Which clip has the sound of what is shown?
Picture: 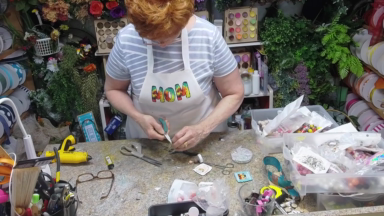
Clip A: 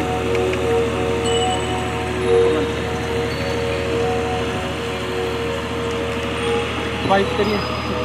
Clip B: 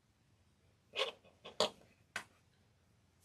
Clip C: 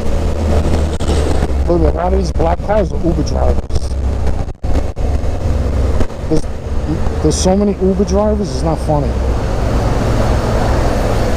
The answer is B